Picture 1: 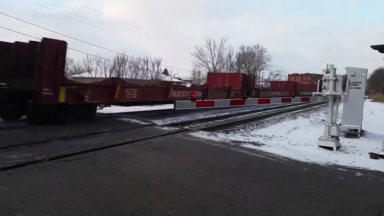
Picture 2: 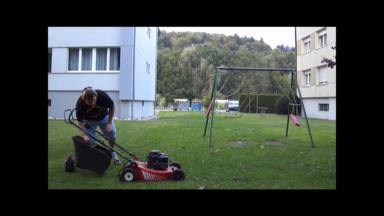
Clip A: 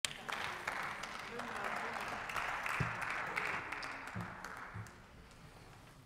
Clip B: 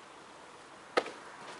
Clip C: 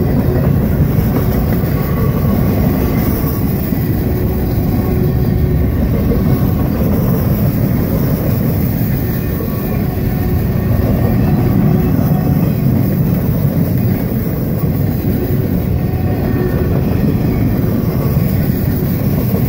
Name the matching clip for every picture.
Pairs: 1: C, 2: B